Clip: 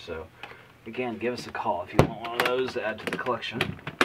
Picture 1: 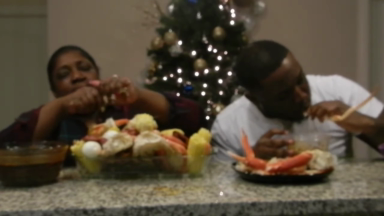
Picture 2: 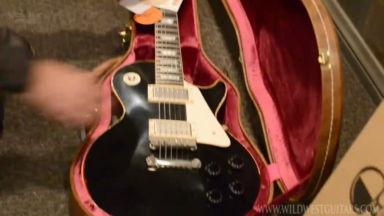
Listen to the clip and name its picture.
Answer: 2